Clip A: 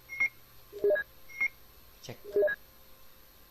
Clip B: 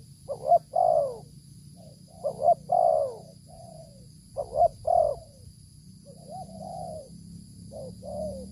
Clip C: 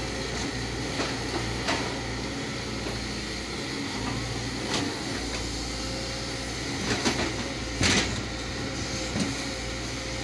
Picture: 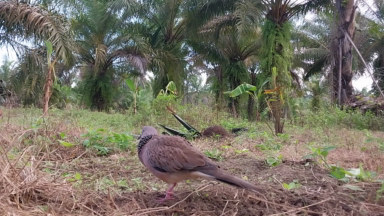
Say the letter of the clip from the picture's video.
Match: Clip B